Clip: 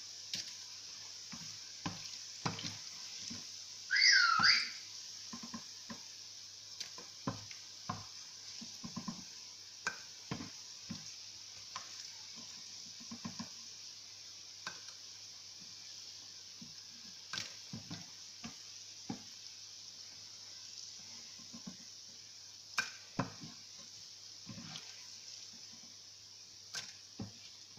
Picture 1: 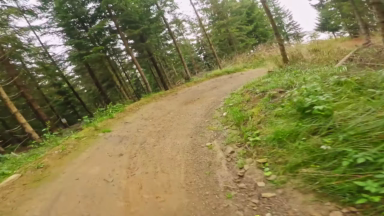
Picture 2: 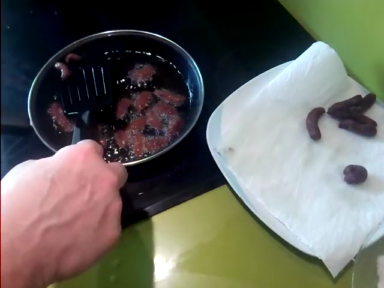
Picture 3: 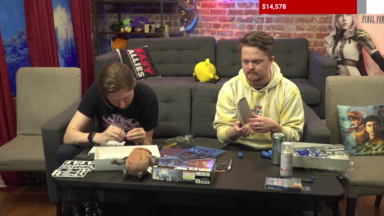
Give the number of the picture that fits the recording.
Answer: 2